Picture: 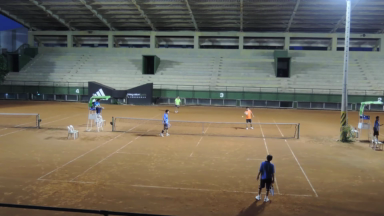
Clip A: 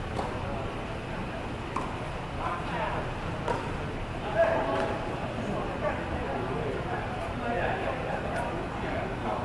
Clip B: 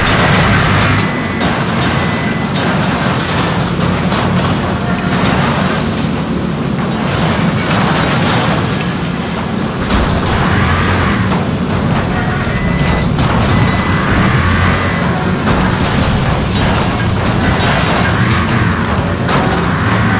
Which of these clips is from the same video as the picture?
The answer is A